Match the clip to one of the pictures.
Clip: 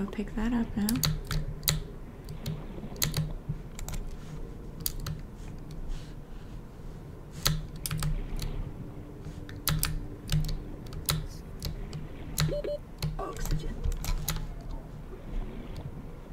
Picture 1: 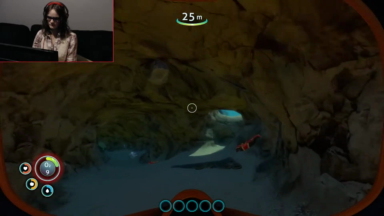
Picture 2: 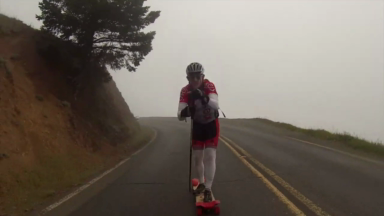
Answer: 1